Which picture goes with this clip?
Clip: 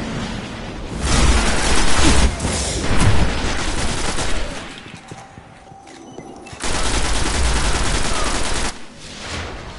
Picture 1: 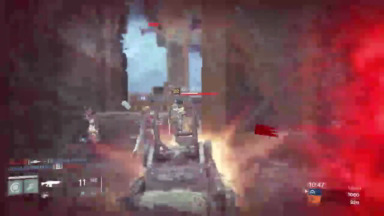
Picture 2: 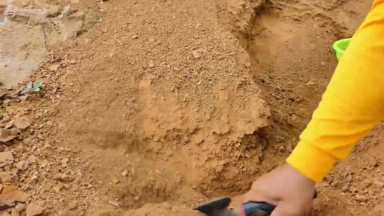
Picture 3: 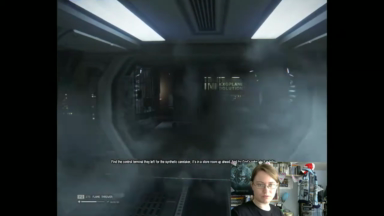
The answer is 1